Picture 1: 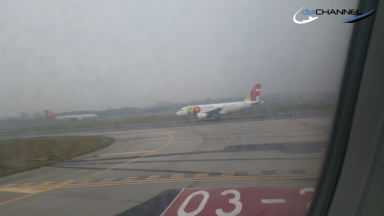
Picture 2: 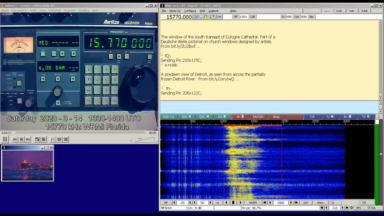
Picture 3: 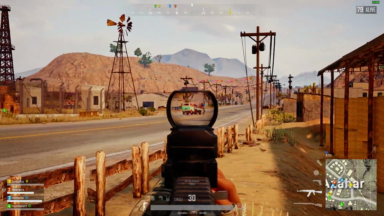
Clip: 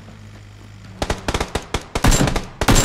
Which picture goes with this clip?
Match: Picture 3